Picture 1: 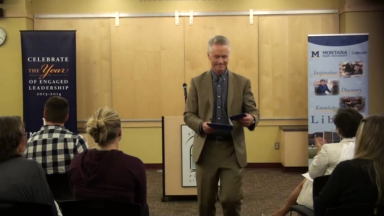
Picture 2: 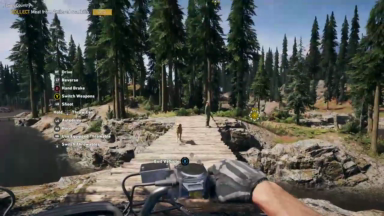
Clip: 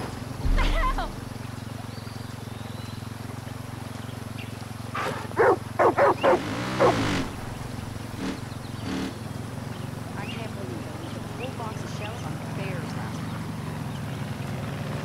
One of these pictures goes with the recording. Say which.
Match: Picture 2